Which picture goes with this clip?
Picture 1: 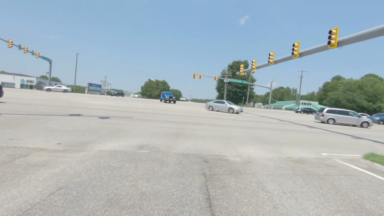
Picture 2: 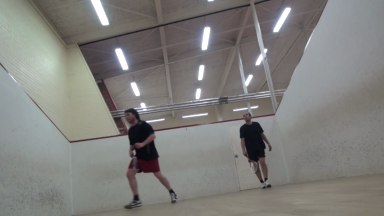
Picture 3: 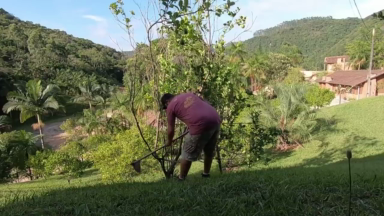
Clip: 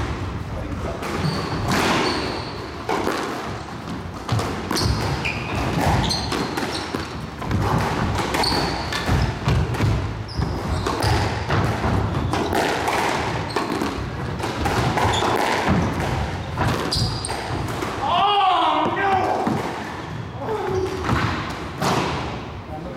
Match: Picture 2